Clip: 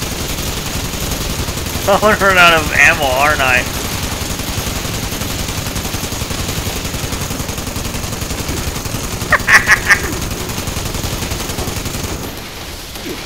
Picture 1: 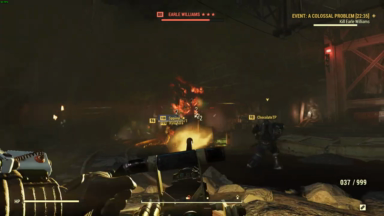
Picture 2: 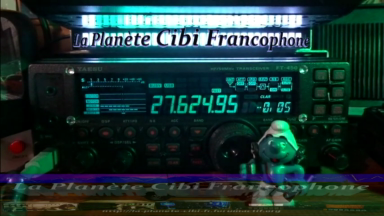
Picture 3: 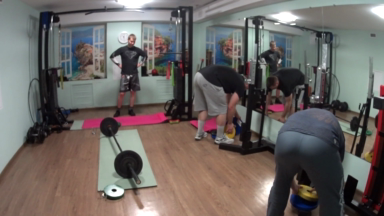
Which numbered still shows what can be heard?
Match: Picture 1